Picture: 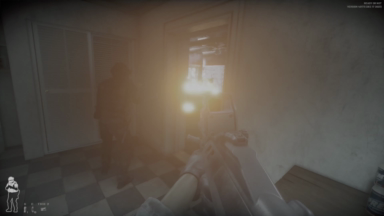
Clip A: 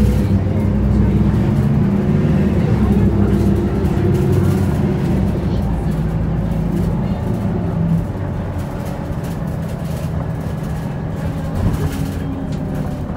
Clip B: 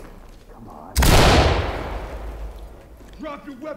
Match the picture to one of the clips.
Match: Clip B